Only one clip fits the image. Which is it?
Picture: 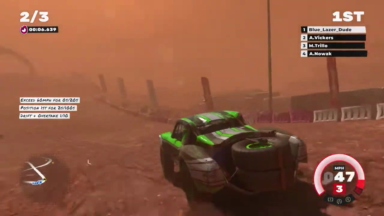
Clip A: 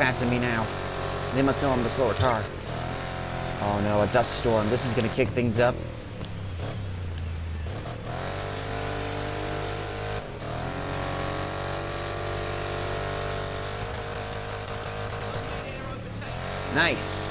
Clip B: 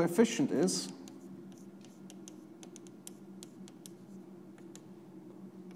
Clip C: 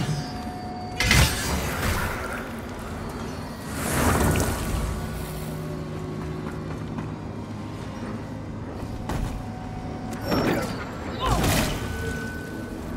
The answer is A